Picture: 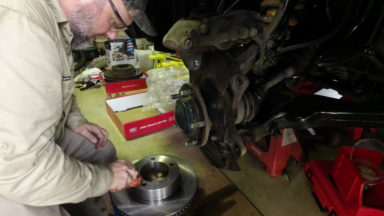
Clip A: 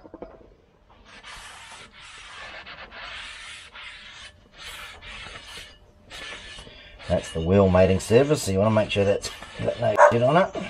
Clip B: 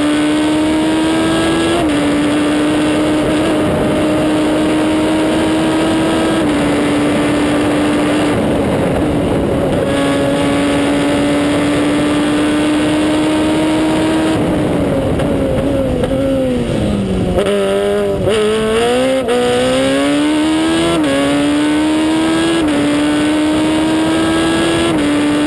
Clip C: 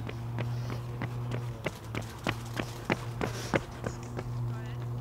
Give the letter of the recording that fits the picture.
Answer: A